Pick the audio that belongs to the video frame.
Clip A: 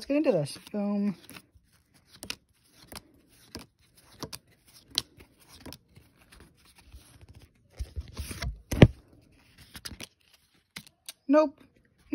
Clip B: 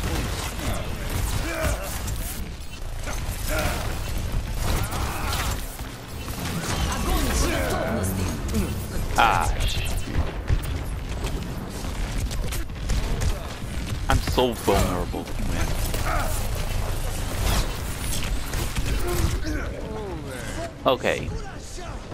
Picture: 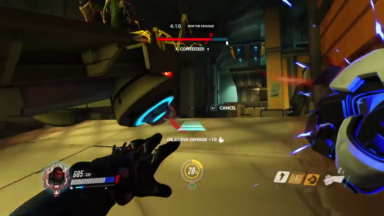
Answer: B